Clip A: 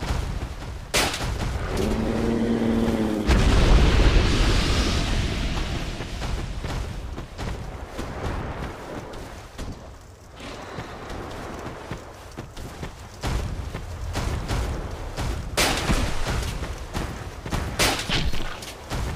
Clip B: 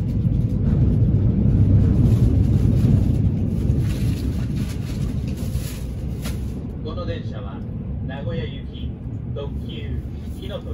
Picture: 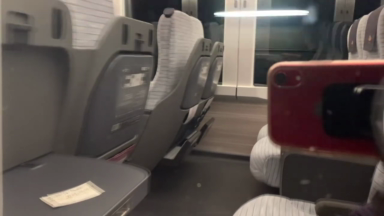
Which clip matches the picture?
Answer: B